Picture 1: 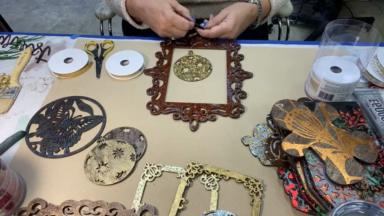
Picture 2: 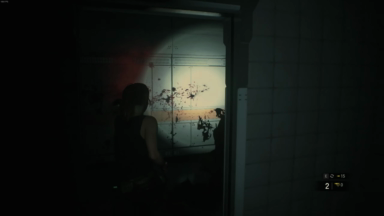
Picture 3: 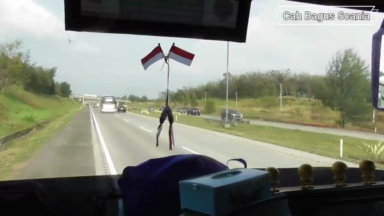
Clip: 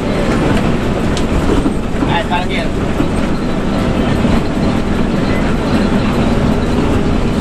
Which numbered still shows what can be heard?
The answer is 3